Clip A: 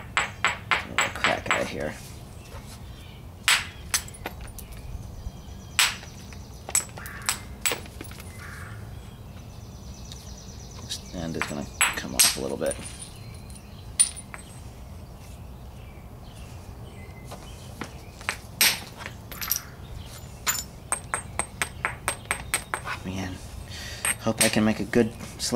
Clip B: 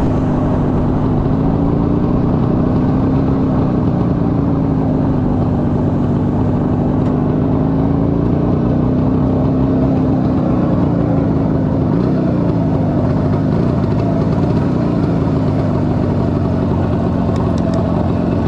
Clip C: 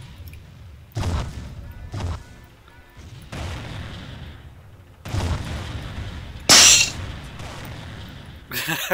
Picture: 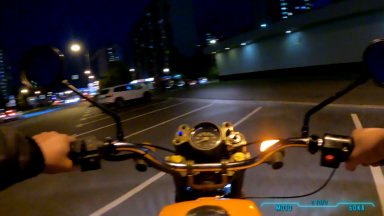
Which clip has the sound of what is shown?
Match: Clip B